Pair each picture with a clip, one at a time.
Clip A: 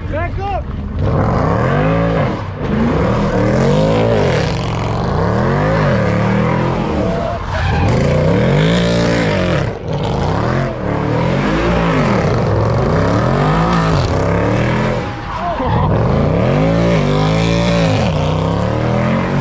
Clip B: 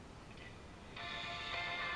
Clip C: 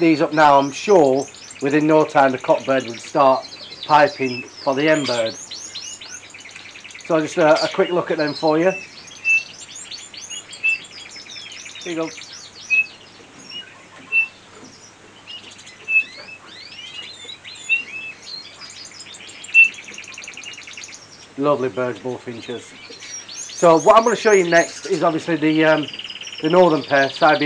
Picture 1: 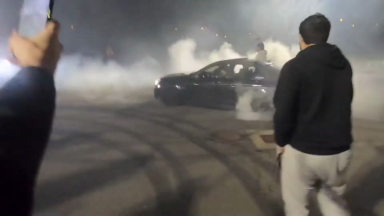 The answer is A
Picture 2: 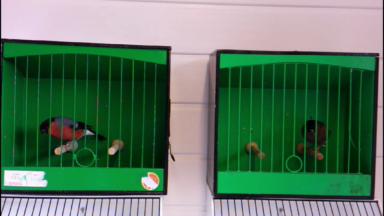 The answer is C